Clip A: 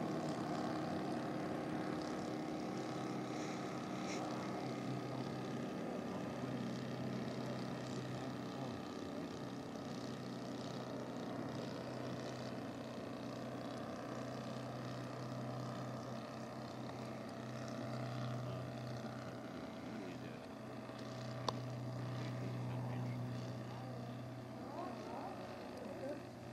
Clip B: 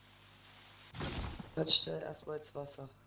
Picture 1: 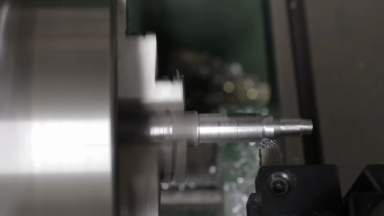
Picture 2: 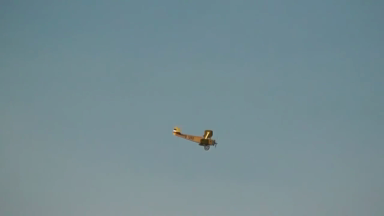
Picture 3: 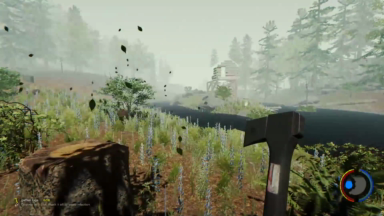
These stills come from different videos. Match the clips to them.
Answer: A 2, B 3